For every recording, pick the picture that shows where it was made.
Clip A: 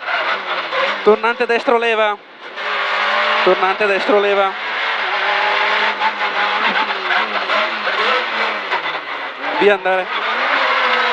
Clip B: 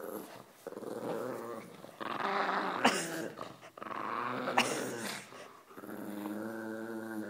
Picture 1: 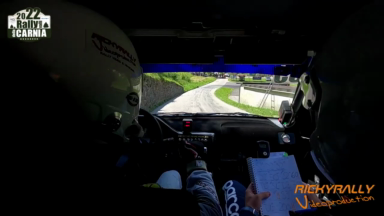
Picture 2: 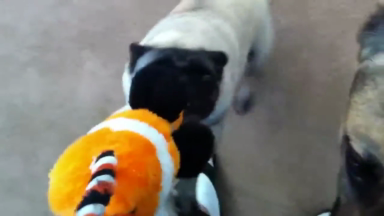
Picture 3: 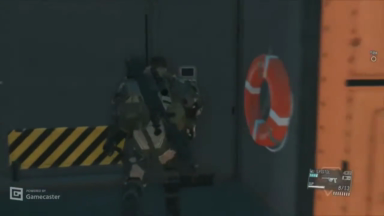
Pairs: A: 1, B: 2